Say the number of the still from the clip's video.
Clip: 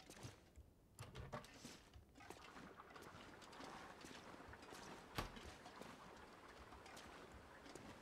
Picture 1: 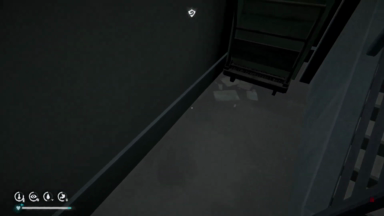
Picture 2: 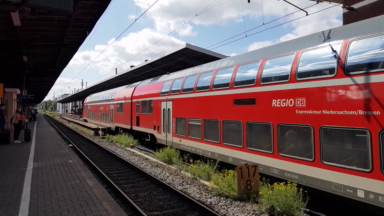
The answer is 1